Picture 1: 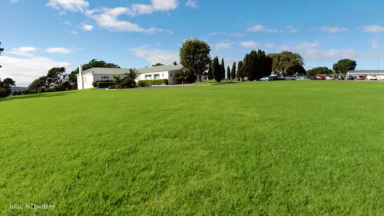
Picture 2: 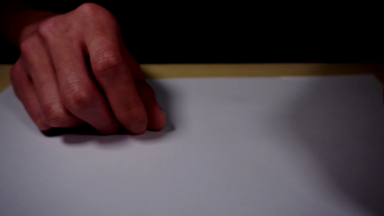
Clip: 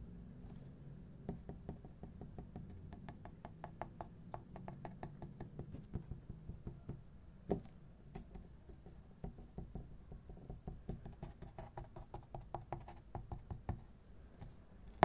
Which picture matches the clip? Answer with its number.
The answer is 2